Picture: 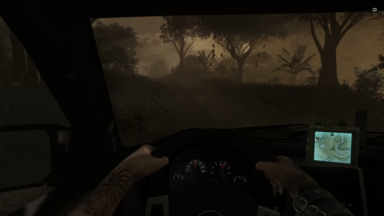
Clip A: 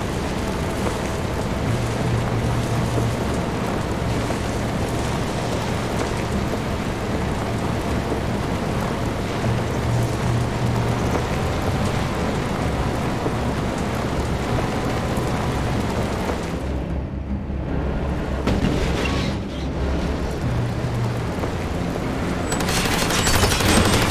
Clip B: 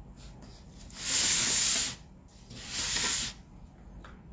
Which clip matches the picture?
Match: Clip A